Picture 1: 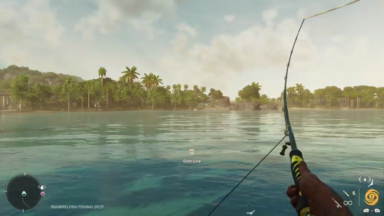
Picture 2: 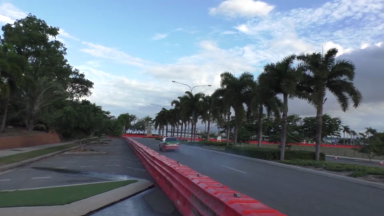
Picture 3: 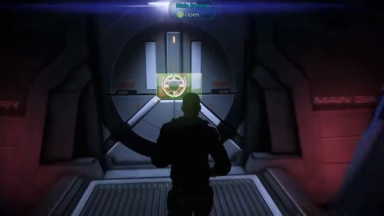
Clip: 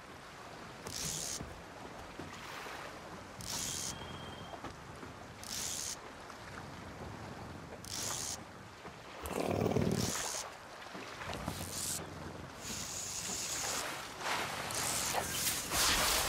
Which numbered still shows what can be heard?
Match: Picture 1